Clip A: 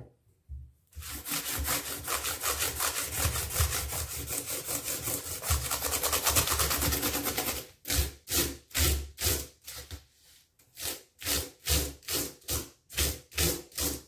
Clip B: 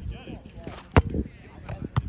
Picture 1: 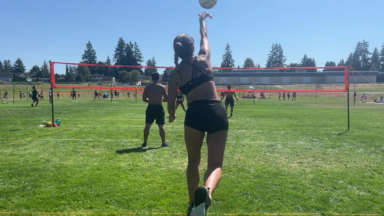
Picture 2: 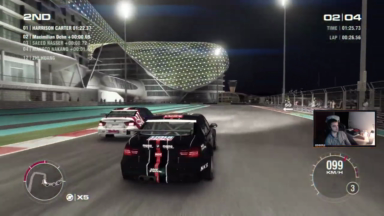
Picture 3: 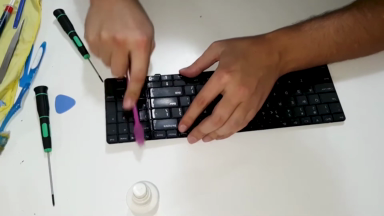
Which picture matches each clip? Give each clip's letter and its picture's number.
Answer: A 3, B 1